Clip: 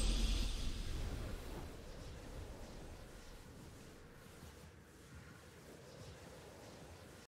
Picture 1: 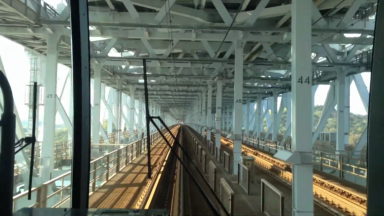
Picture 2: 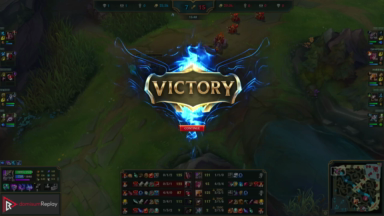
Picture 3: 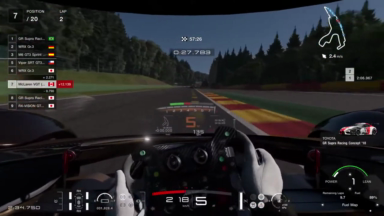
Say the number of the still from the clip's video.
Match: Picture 2